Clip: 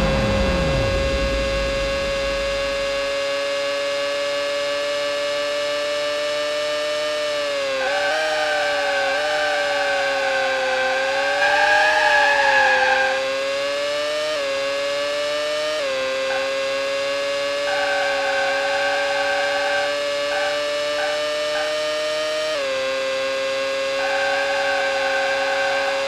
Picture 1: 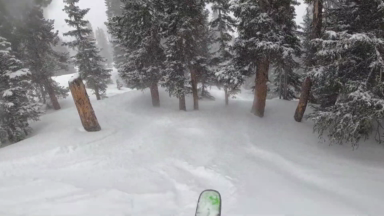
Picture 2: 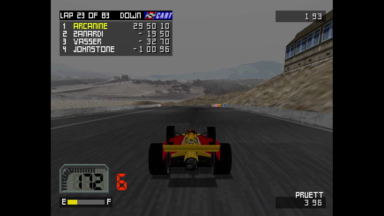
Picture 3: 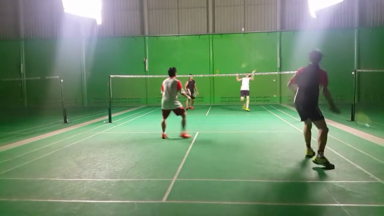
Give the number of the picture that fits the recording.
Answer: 2